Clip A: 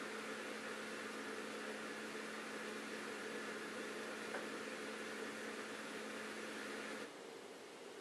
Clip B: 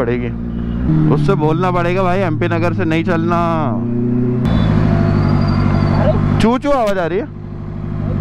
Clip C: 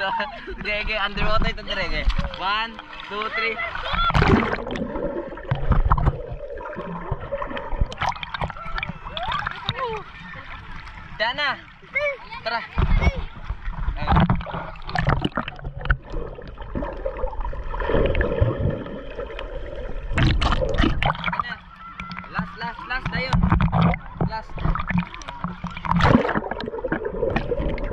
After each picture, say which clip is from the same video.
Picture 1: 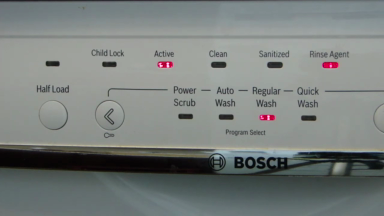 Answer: A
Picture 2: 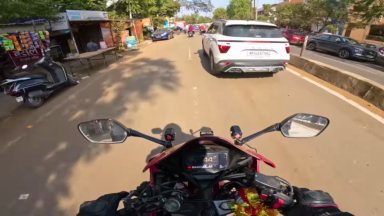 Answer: B